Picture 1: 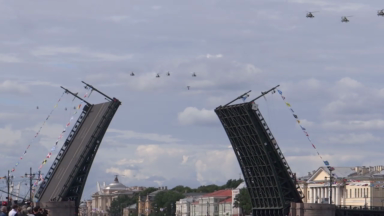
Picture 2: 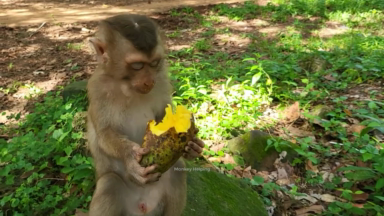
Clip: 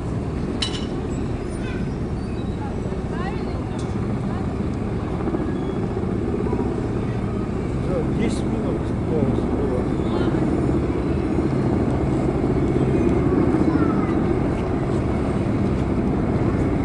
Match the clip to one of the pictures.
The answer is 1